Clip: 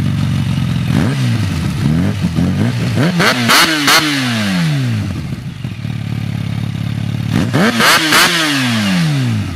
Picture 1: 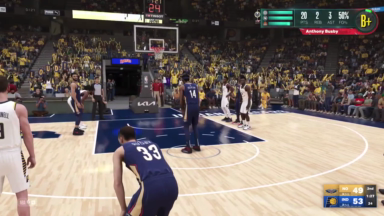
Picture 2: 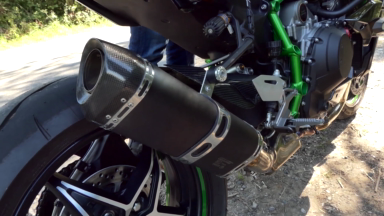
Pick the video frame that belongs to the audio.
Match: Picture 2